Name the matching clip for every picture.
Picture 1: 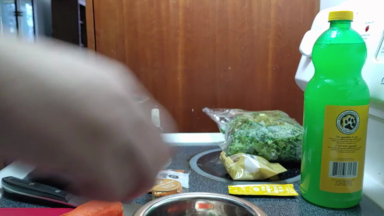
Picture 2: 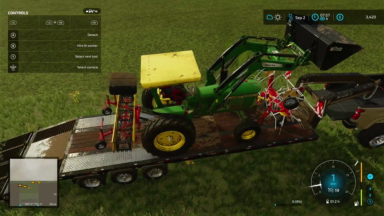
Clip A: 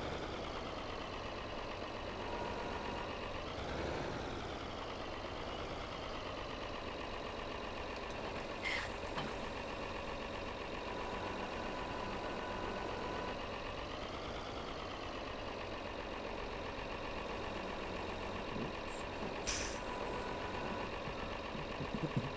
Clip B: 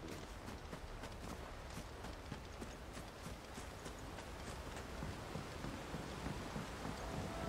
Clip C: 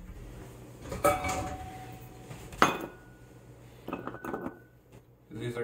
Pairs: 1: C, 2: A